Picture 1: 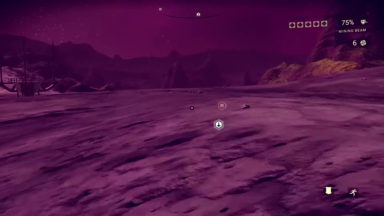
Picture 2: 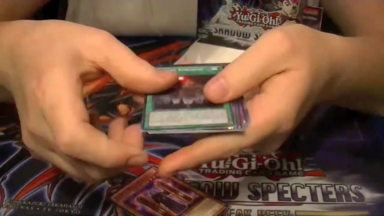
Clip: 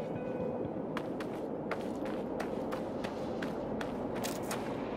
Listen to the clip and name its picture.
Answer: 1